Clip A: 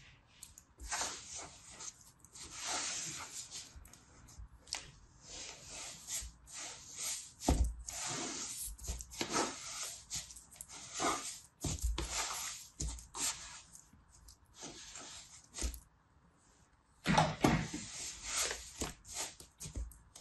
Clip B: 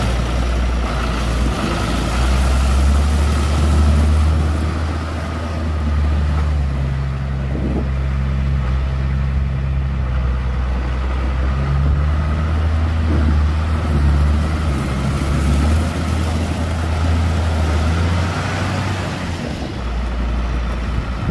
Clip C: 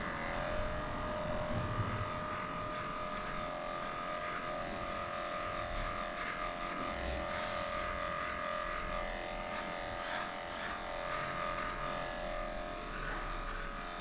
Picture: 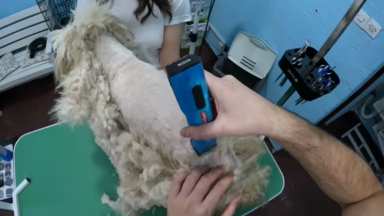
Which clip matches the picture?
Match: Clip C